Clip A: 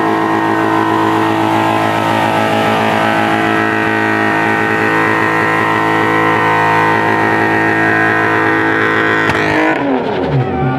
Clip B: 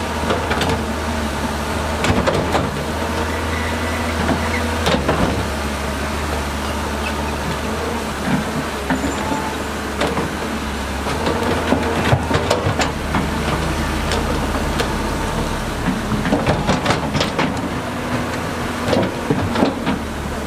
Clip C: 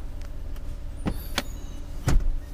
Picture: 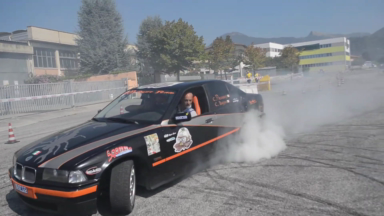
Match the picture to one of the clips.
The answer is A